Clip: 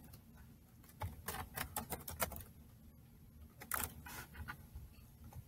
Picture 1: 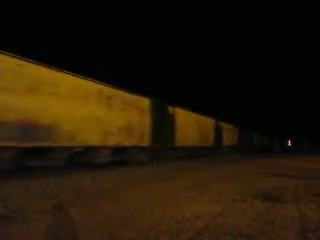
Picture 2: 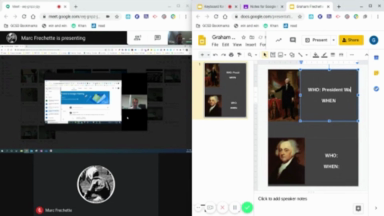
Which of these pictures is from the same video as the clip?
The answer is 2